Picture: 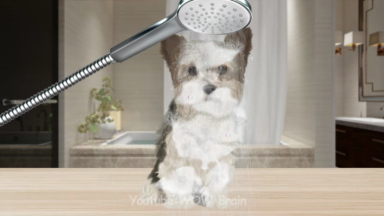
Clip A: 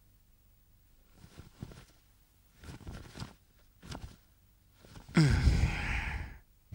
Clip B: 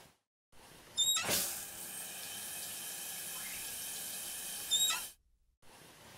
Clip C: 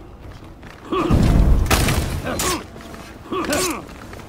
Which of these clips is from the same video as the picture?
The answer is B